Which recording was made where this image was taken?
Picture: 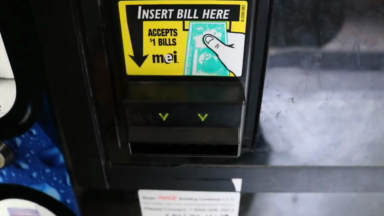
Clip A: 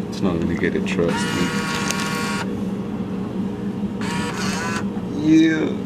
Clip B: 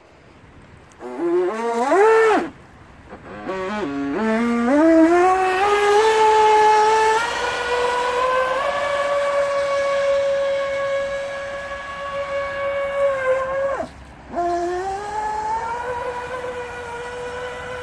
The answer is A